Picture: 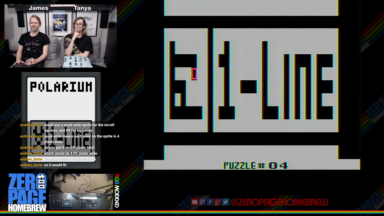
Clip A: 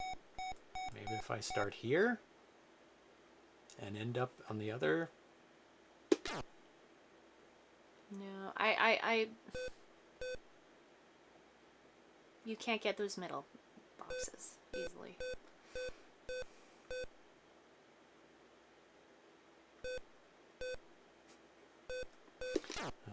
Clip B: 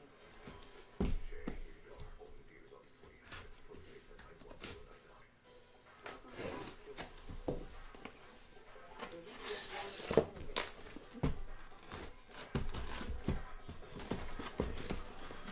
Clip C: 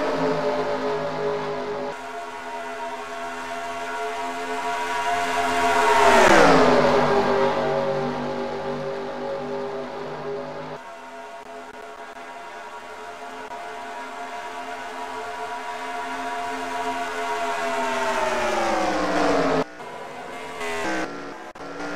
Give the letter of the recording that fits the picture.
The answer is A